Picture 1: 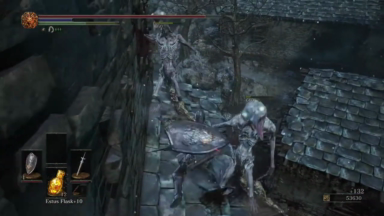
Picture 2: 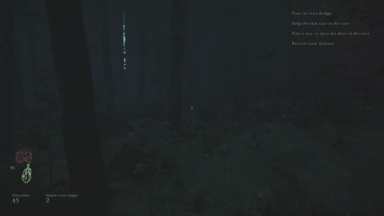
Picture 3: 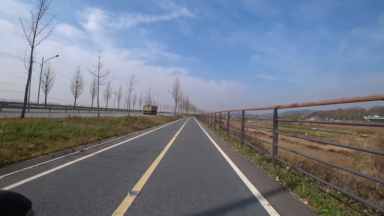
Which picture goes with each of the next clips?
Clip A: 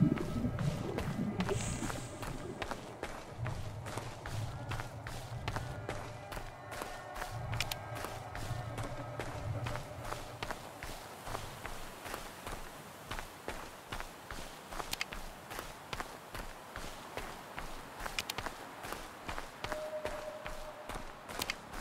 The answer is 2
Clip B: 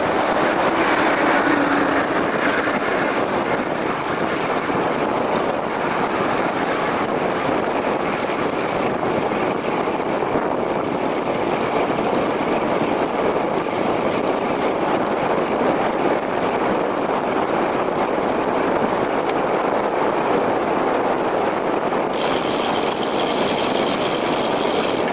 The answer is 3